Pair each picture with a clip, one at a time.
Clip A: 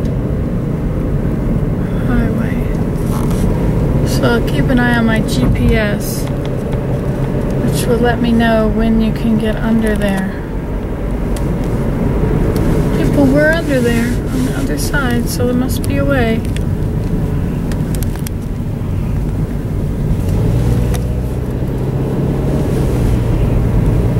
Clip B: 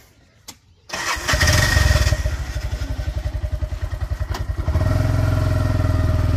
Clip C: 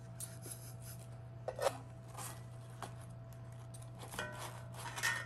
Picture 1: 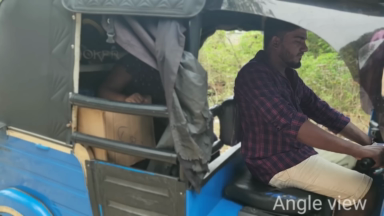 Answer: B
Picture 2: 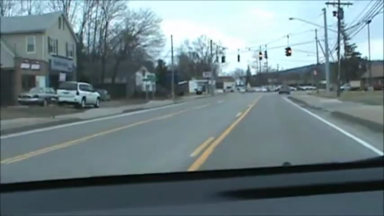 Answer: A